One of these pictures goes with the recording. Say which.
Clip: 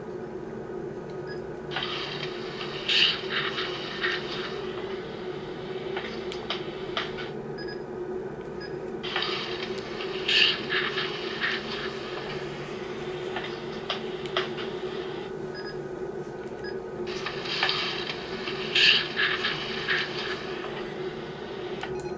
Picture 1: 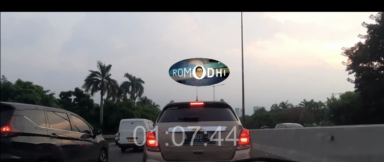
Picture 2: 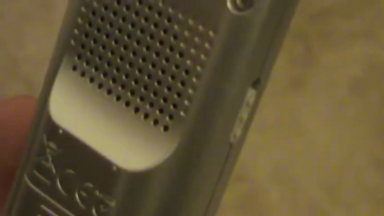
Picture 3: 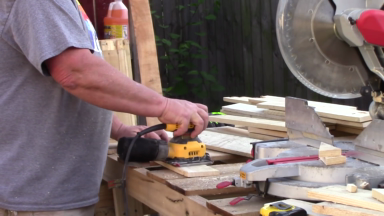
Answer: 2